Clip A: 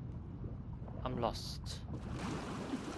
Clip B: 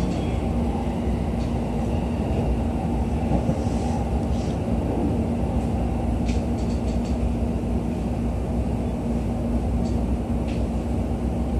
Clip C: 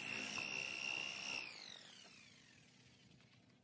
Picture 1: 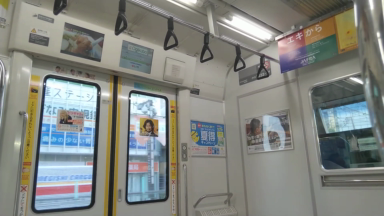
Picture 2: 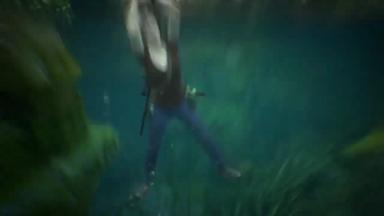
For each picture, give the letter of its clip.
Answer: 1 B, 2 A